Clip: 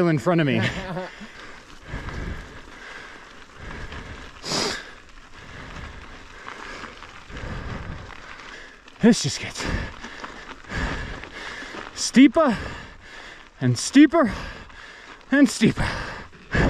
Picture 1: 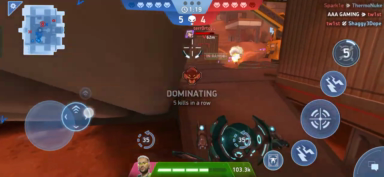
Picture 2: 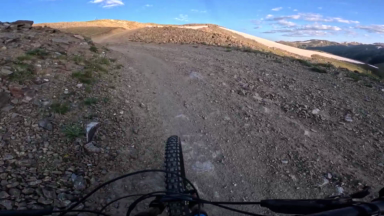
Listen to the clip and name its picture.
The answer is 2